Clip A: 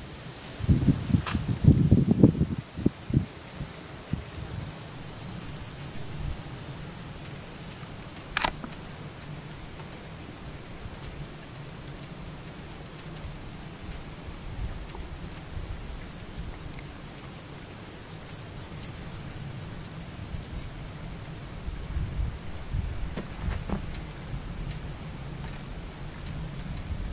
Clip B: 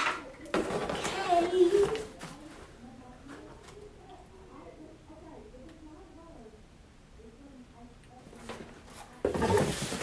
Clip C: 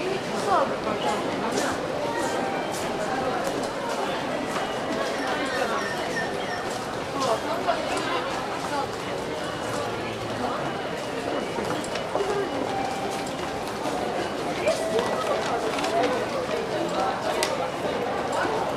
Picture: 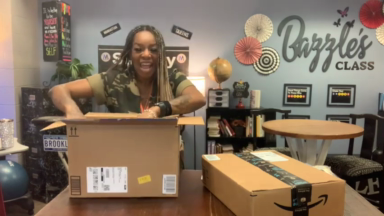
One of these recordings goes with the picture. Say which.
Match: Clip B